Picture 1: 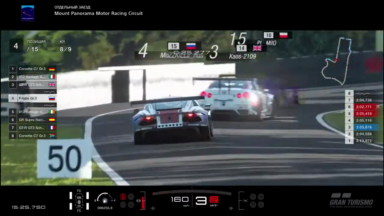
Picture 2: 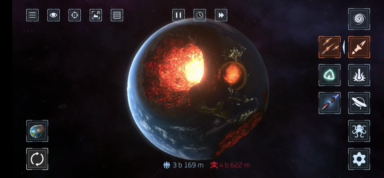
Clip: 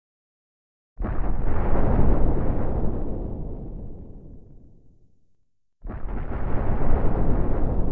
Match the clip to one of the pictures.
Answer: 2